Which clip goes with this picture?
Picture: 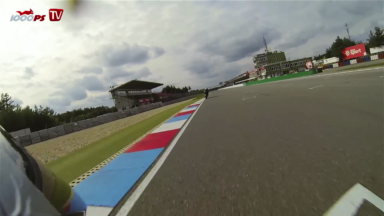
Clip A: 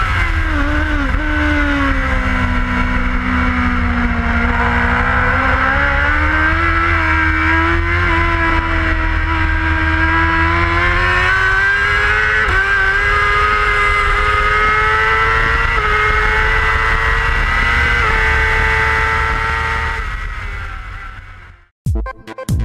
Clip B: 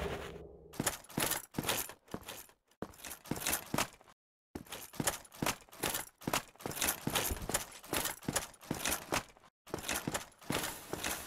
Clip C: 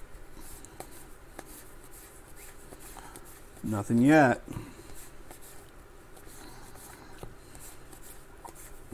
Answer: A